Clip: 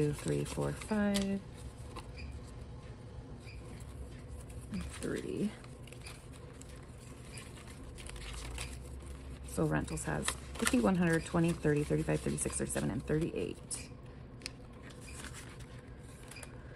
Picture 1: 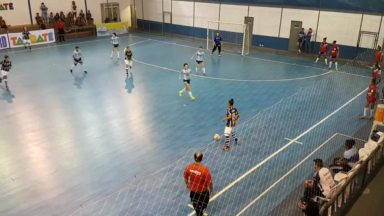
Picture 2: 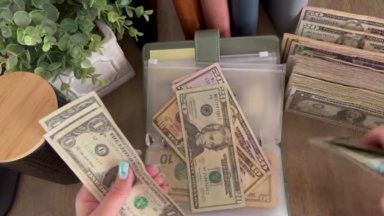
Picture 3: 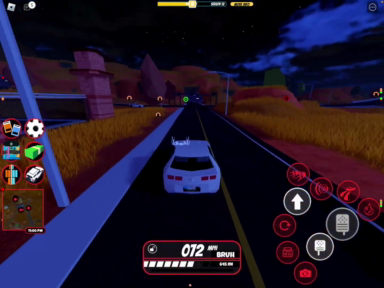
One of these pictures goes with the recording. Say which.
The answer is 2